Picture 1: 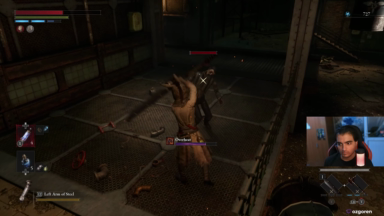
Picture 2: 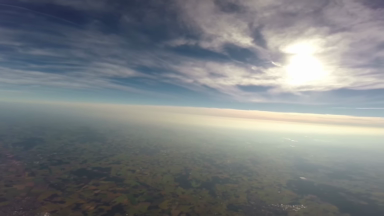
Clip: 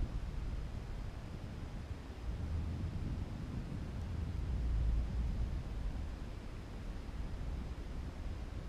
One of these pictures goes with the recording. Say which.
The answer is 2